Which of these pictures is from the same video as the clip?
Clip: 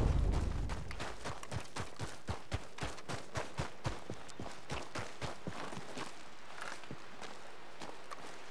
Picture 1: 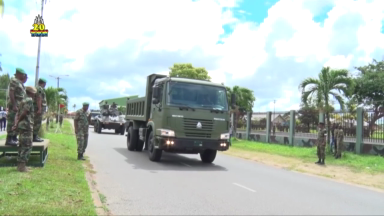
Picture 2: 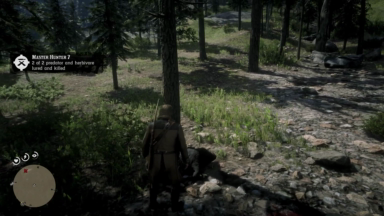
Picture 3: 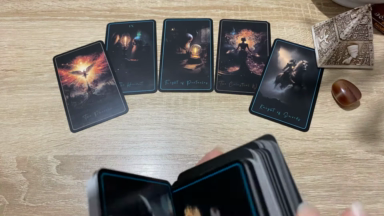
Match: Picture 2